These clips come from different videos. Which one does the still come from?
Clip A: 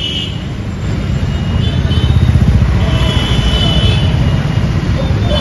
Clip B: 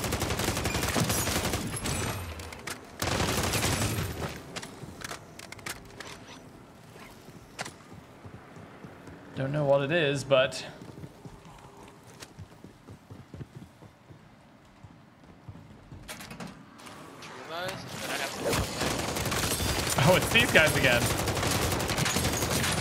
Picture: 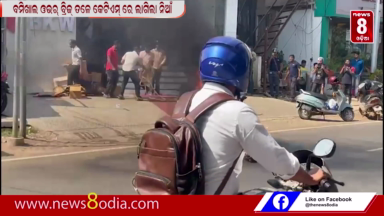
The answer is A